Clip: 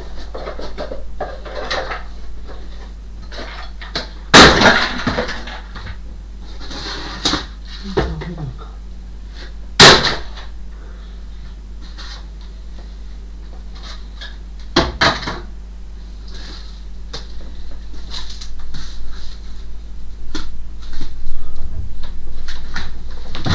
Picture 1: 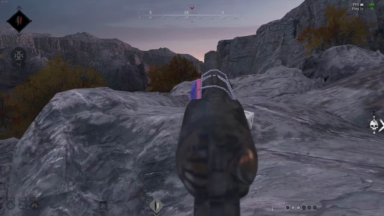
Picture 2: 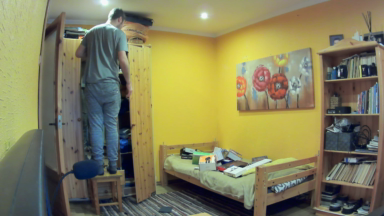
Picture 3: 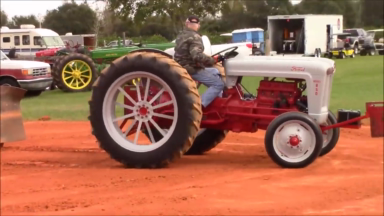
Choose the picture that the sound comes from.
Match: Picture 2